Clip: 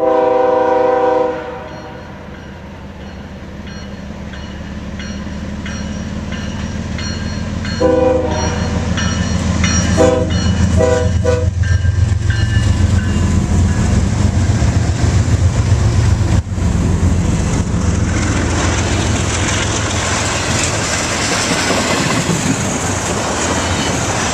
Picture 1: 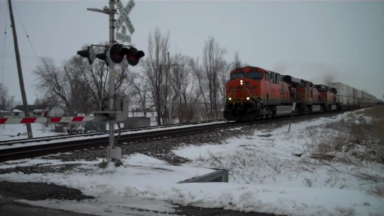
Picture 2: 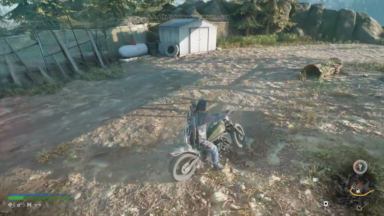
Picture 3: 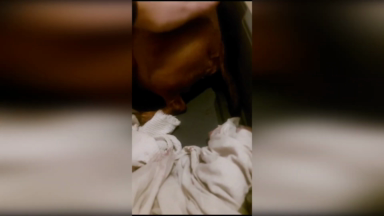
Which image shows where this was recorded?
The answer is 1